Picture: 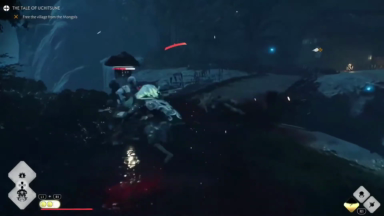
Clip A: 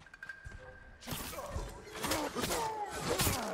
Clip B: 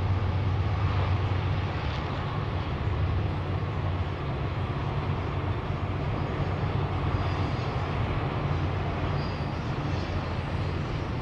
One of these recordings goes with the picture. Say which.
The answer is A